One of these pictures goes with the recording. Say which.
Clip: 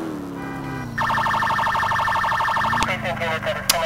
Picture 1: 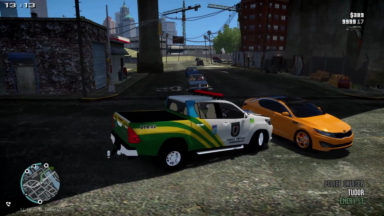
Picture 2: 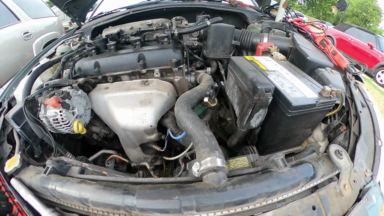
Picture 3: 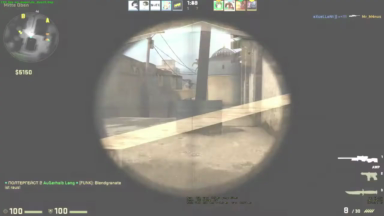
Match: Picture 1